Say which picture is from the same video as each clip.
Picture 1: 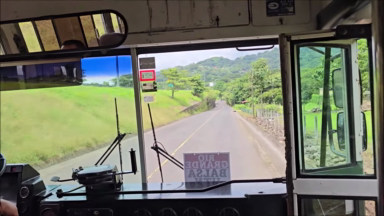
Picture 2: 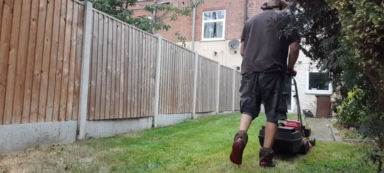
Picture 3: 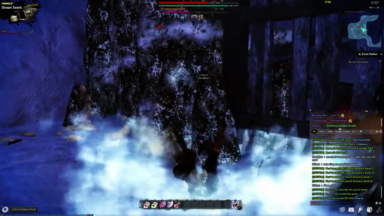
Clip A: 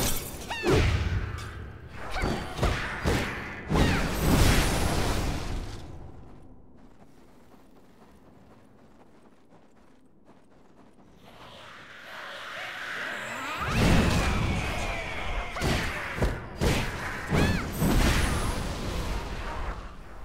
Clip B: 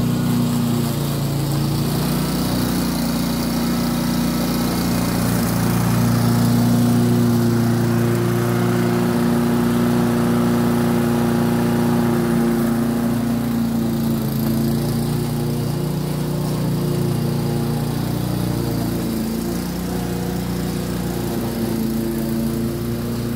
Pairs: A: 3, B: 2